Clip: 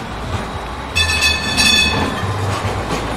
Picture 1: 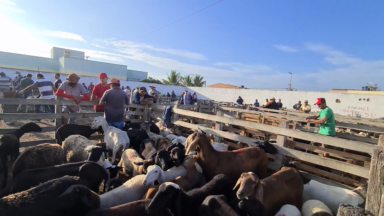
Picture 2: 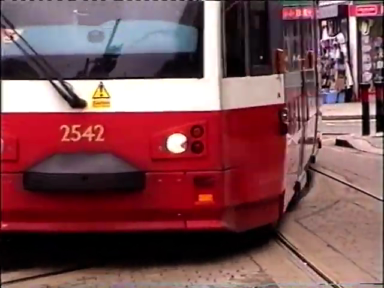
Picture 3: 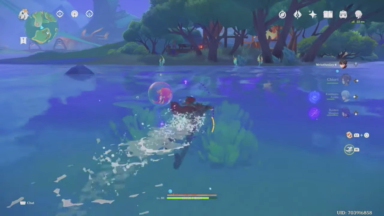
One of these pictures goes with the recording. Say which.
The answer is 2